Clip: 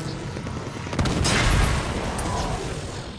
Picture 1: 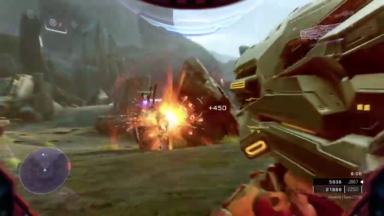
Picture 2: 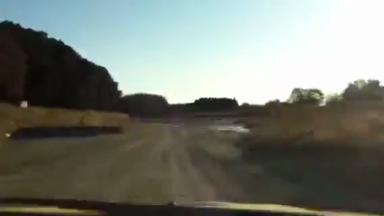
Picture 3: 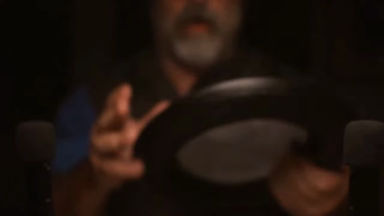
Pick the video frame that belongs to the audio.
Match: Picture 1